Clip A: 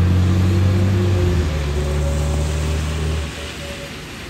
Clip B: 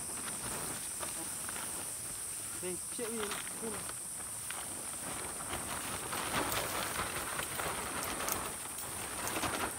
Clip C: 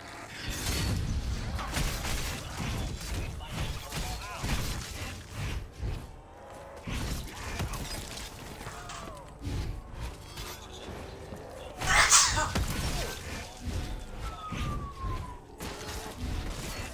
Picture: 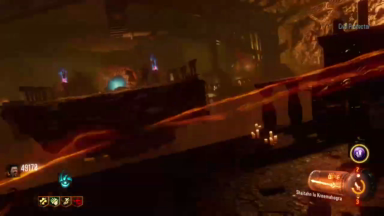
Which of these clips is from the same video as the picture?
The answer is C